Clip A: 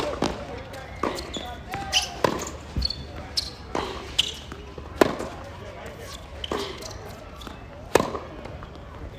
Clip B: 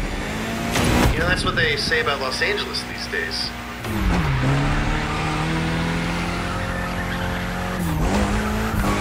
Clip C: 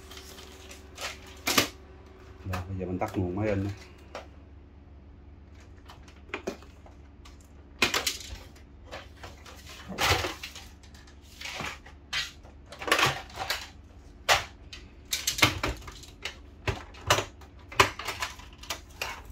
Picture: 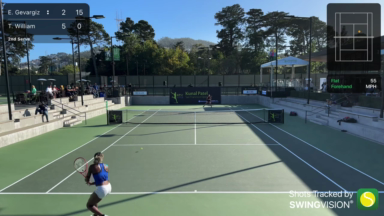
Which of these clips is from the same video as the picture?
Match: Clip A